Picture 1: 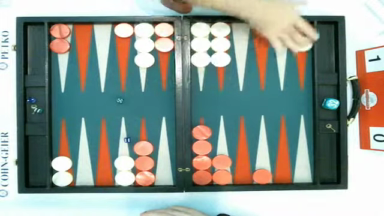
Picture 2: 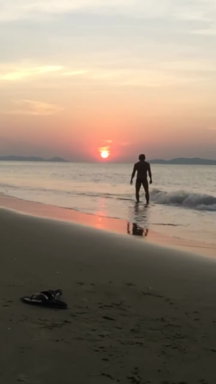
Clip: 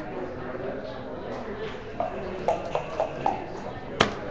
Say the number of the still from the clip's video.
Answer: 1